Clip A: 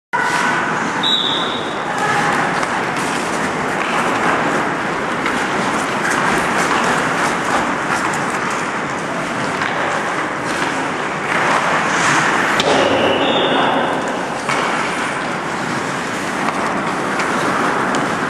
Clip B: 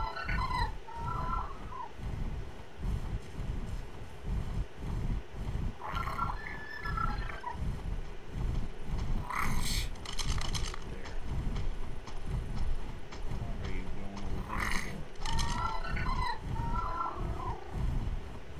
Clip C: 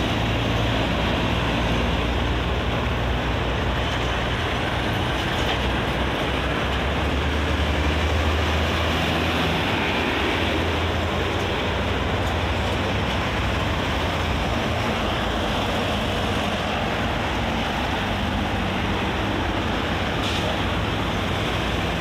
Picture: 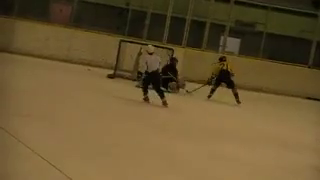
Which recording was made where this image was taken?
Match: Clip A